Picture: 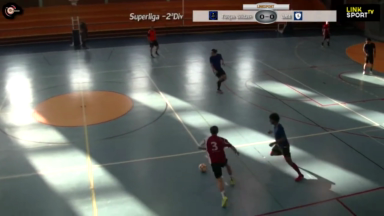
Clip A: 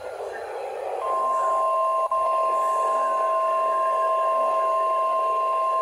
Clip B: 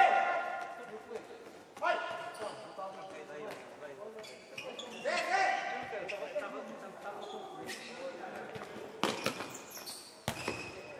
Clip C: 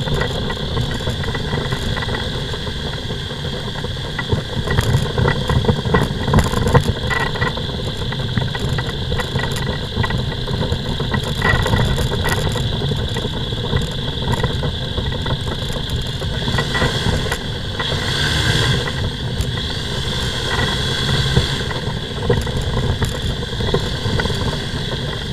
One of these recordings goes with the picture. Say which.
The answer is B